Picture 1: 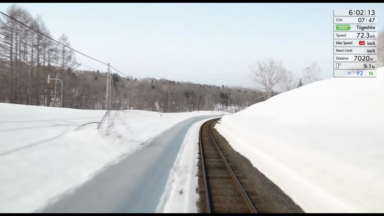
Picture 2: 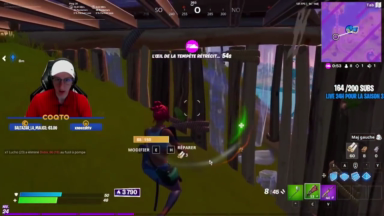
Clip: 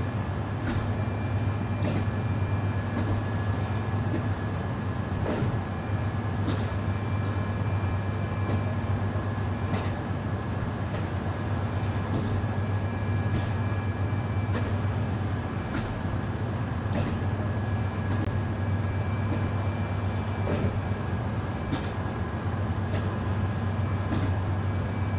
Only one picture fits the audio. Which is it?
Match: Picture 1